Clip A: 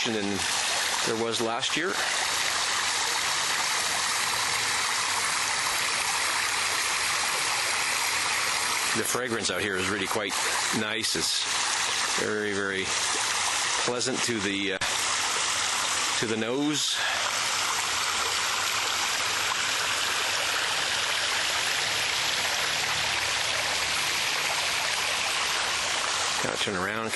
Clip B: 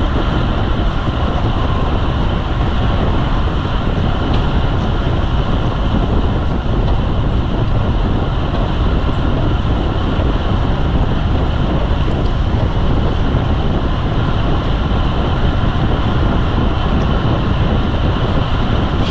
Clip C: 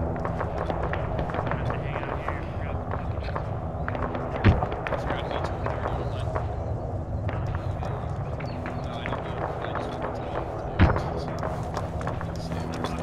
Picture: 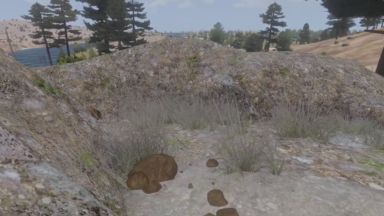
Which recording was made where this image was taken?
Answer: C